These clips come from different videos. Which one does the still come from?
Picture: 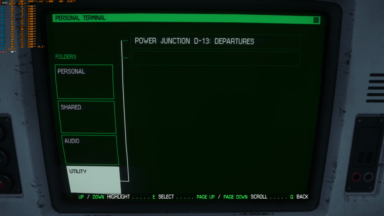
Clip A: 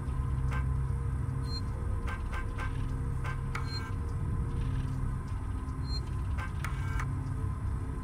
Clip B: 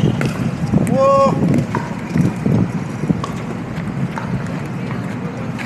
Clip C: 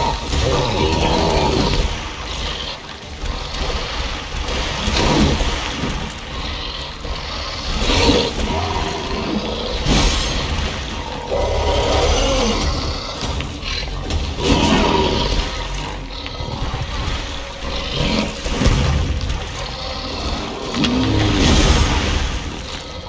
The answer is A